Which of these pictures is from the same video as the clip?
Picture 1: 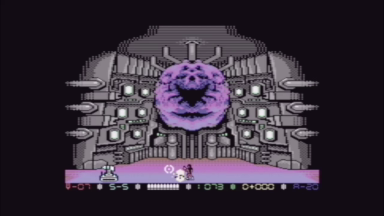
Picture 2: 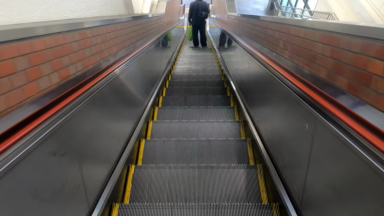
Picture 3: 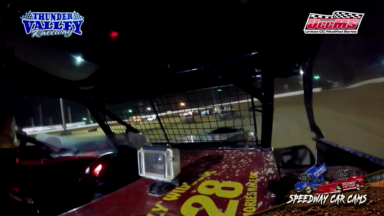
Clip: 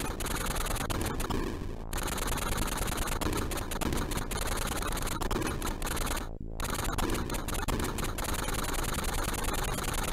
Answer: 1